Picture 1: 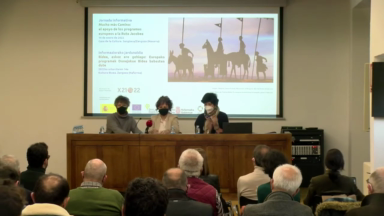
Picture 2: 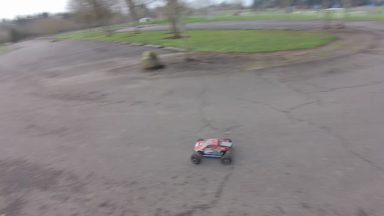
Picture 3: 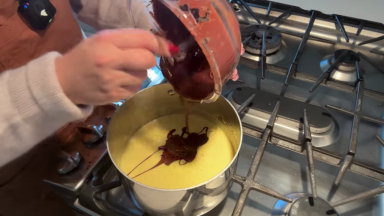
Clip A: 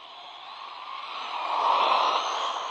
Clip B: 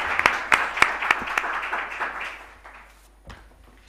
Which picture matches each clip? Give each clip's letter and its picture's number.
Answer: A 2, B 1